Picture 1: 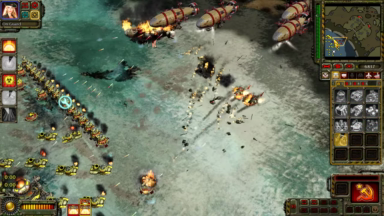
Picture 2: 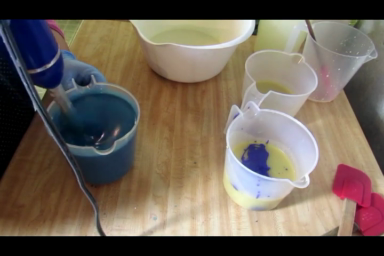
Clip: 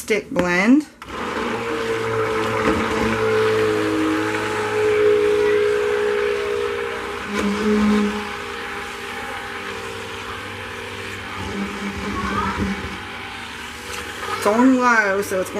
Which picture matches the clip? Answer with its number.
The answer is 2